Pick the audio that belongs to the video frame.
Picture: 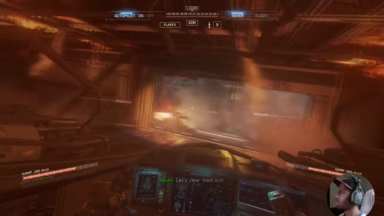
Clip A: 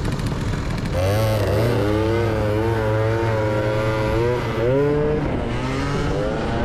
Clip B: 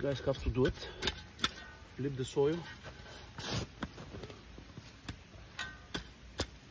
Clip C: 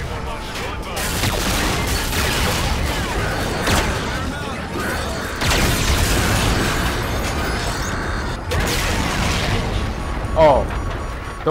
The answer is C